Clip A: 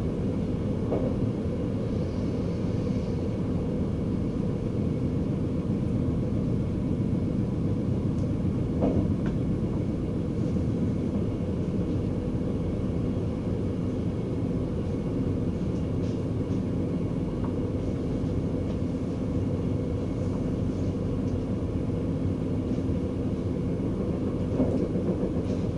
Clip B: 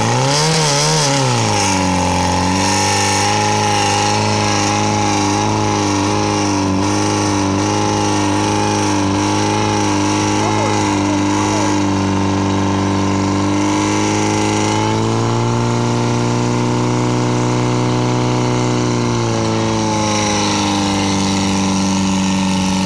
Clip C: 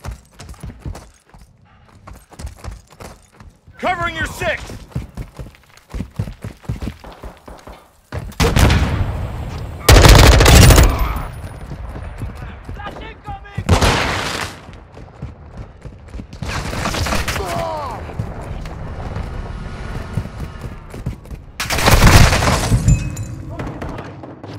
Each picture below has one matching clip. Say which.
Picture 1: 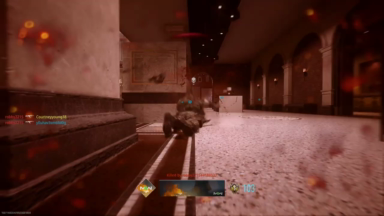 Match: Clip C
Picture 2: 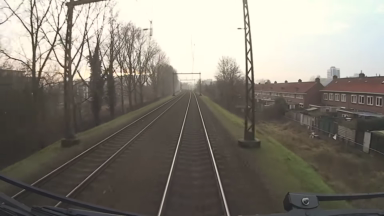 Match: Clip A